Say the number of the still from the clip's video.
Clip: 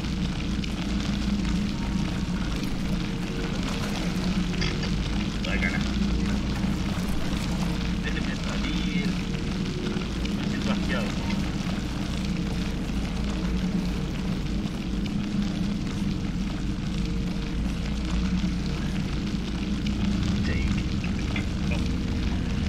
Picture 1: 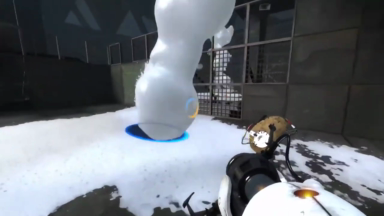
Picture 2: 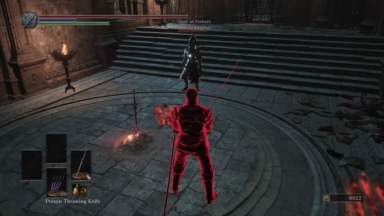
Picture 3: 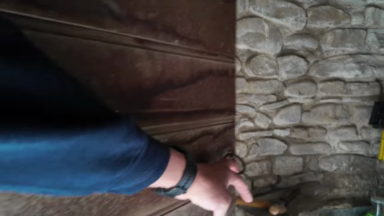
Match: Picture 1